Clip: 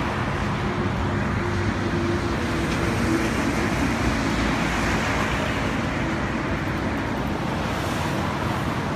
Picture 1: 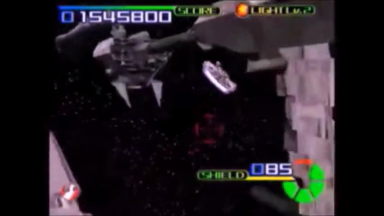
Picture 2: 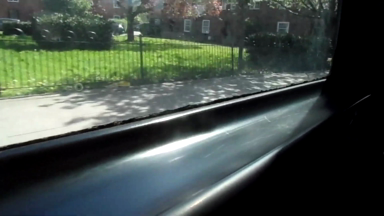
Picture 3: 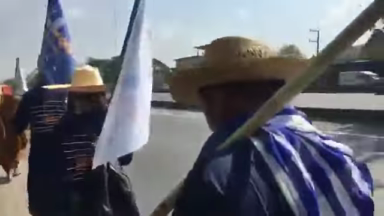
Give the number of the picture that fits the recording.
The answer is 3